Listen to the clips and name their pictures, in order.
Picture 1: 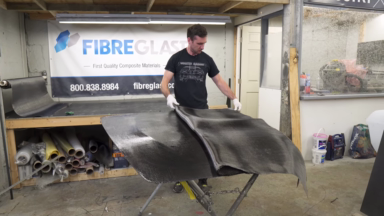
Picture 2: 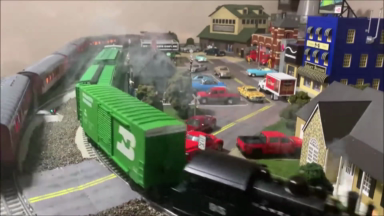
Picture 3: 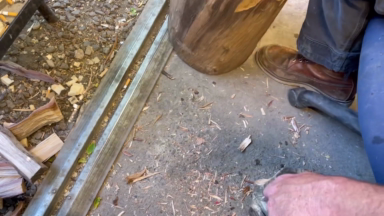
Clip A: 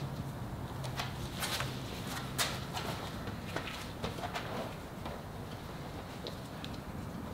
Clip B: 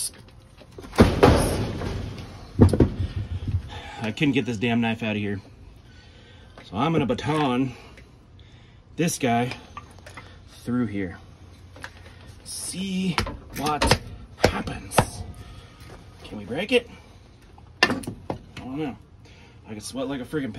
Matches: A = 1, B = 3